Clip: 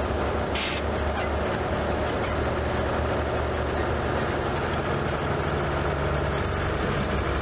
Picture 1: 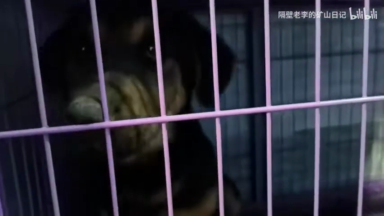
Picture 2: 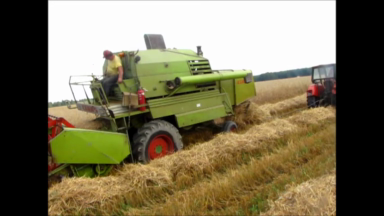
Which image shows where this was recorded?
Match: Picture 2